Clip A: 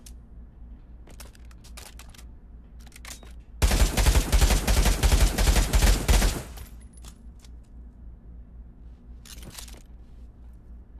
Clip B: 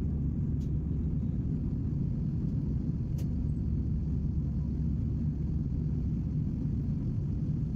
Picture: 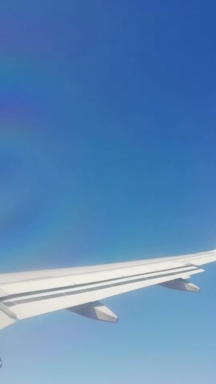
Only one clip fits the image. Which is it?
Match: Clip B